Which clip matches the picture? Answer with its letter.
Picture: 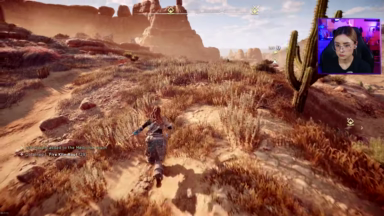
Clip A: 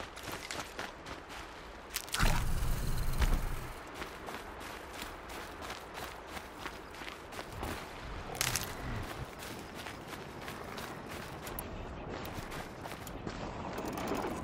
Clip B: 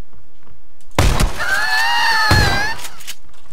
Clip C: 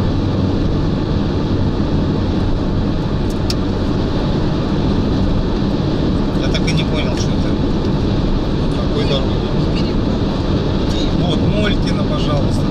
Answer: A